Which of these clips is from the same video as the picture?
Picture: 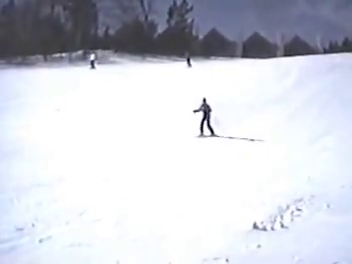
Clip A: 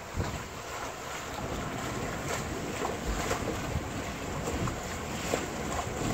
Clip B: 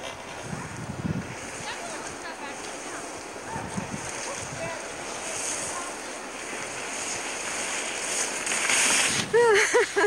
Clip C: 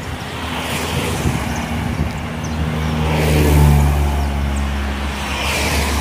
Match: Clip B